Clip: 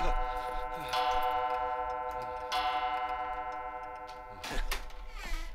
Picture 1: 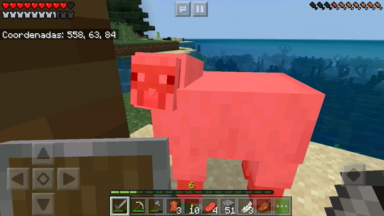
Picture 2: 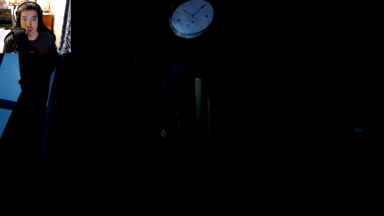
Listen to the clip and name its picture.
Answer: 2